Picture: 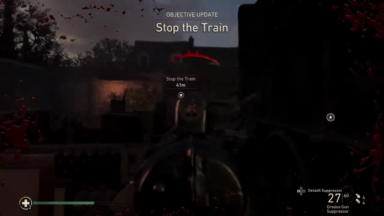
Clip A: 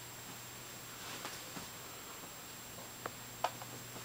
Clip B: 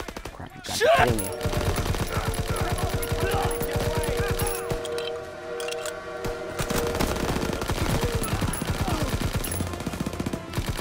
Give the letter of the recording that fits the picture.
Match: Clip B